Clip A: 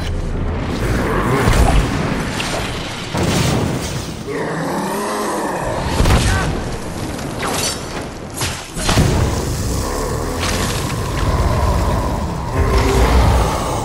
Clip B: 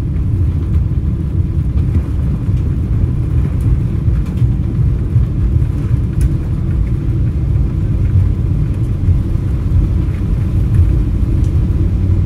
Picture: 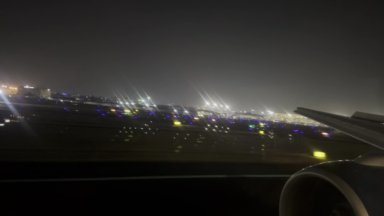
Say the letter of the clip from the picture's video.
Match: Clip B